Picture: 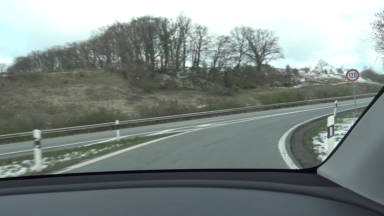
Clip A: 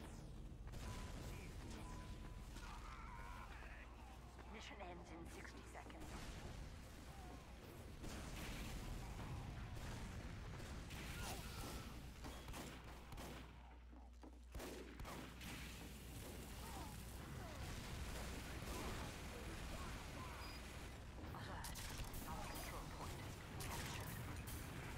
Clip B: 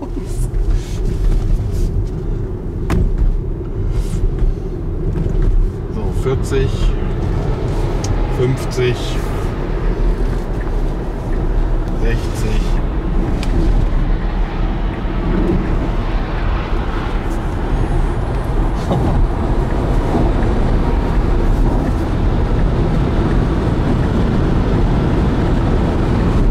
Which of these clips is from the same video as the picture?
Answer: B